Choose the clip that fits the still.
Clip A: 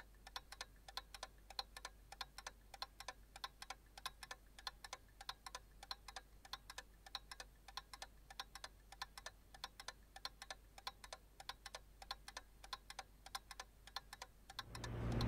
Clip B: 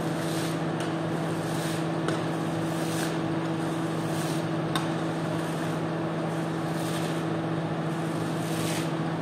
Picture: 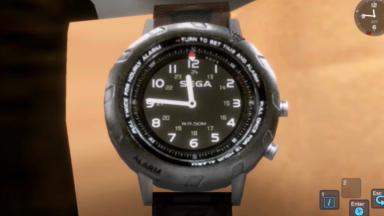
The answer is A